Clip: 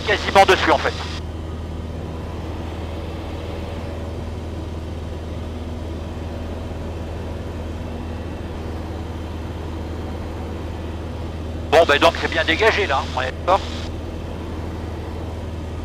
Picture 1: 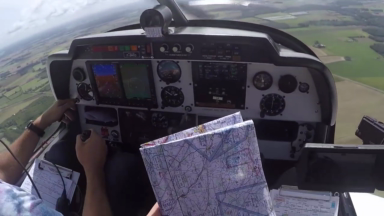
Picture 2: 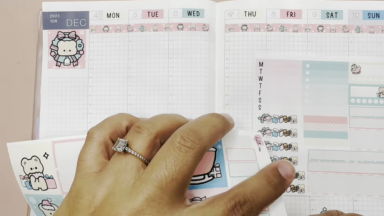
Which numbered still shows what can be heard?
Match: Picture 1